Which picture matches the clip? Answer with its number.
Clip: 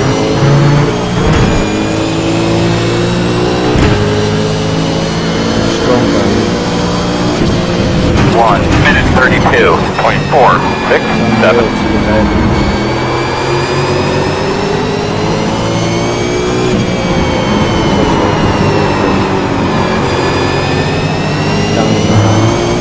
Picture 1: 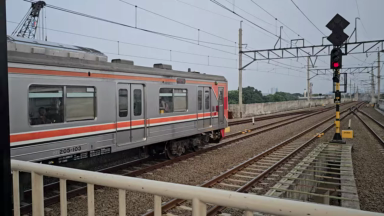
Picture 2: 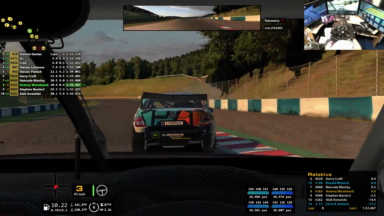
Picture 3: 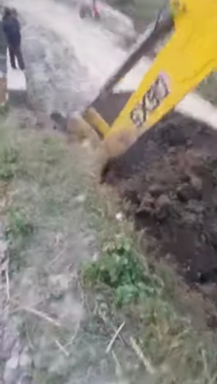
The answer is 2